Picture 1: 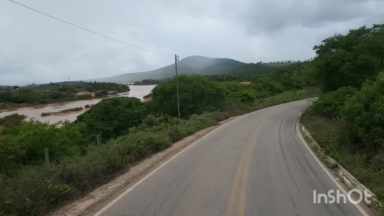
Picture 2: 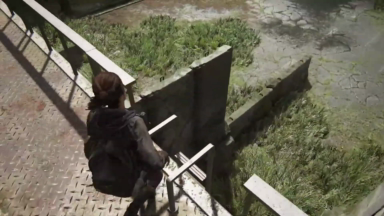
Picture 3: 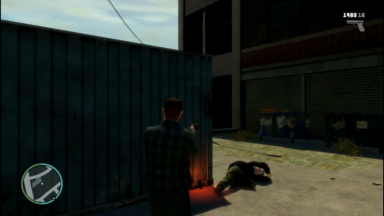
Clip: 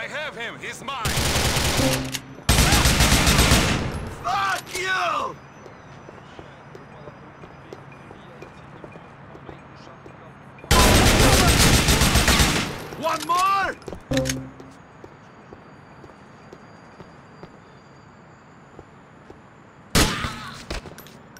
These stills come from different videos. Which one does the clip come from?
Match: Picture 3